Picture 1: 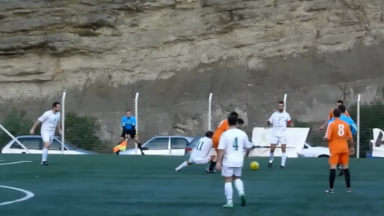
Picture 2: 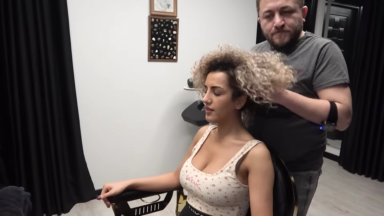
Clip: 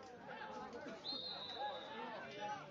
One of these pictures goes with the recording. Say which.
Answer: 1